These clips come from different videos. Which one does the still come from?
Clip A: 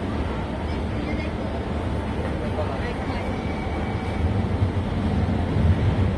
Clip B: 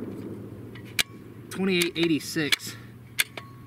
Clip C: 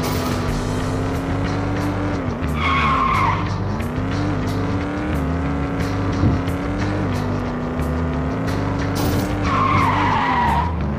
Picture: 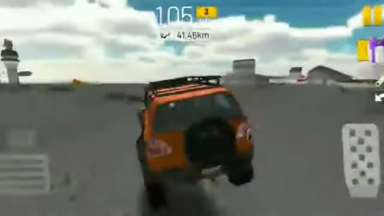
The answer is C